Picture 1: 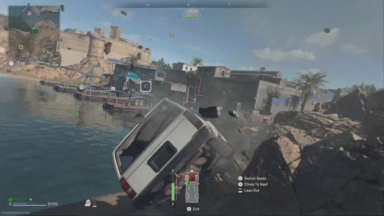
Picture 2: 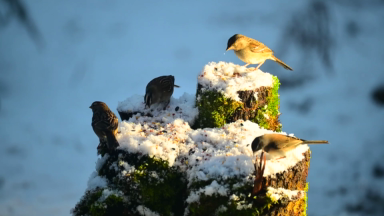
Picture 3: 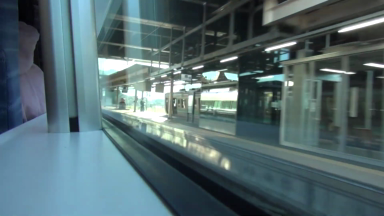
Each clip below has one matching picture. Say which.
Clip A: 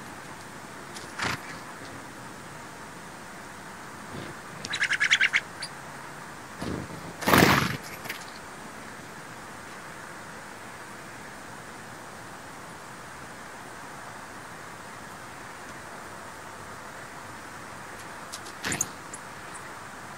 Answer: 2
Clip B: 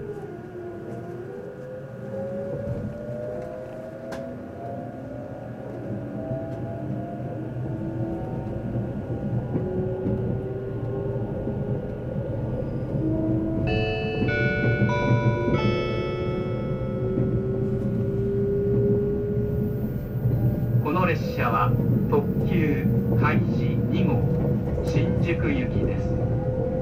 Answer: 3